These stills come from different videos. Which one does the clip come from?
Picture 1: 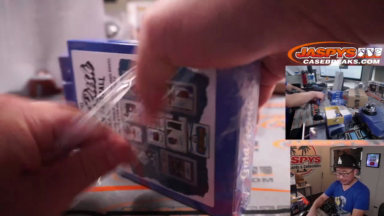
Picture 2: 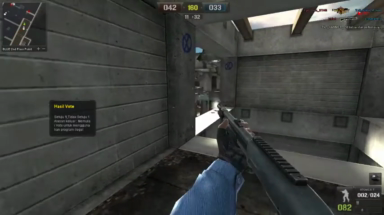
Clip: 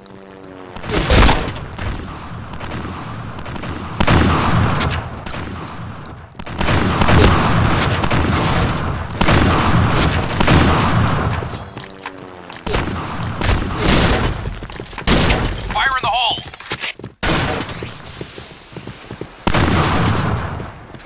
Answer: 2